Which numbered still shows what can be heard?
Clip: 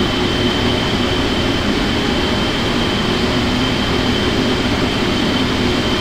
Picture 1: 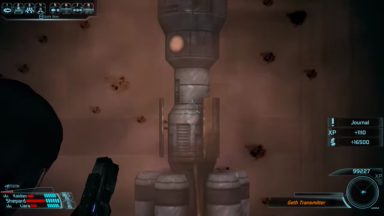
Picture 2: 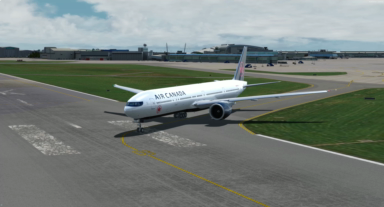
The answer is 2